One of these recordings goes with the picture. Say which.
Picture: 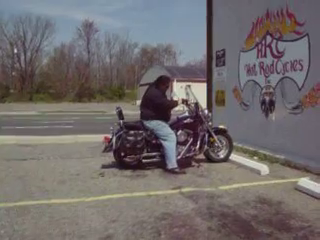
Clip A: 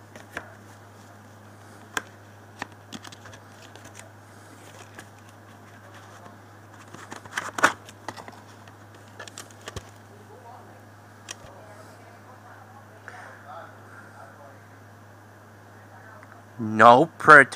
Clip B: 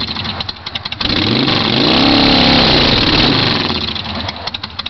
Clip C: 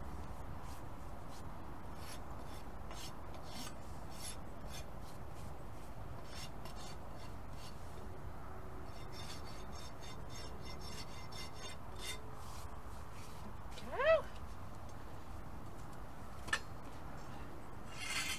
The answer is B